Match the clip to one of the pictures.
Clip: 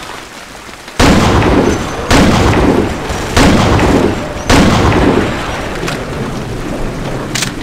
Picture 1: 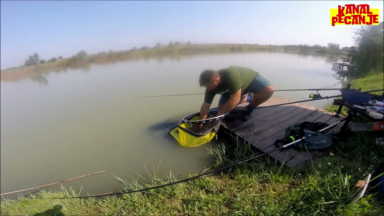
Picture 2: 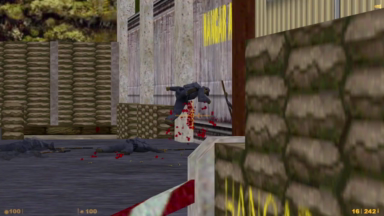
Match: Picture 2